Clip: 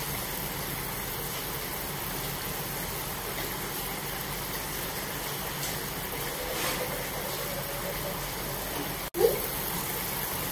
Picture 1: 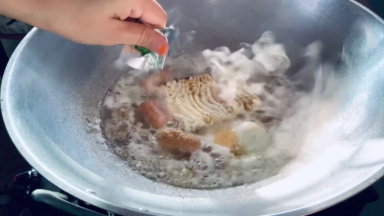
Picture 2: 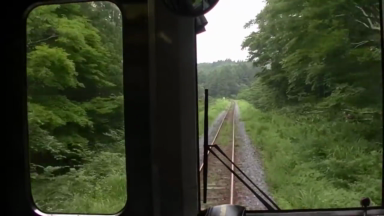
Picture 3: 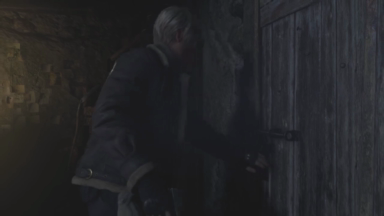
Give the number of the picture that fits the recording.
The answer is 1